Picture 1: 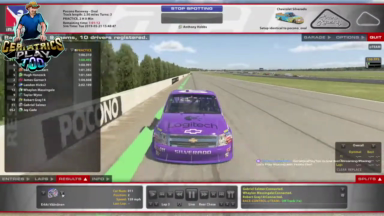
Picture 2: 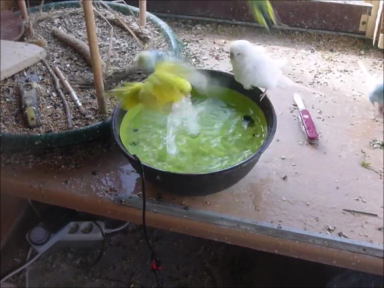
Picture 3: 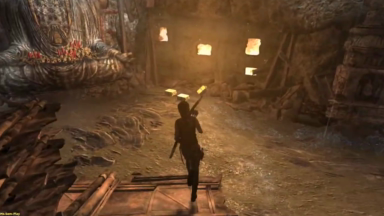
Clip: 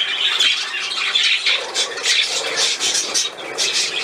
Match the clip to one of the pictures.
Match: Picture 2